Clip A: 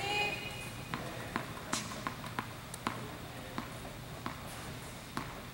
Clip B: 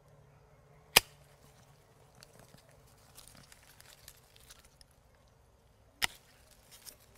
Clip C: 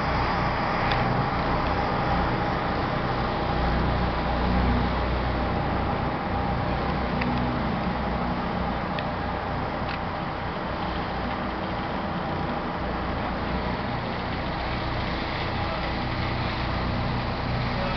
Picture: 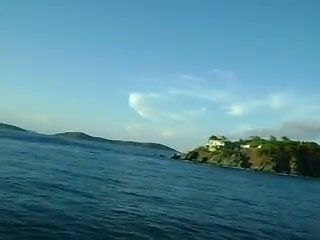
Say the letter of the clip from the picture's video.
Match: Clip C